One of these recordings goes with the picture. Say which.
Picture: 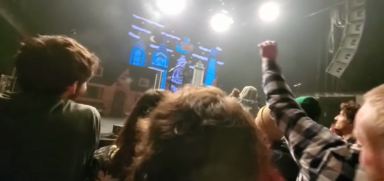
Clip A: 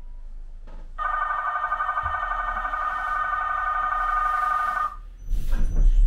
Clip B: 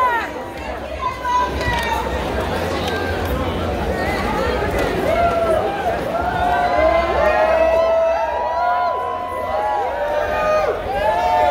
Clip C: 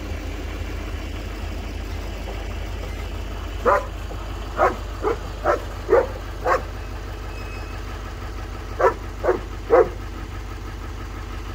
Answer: B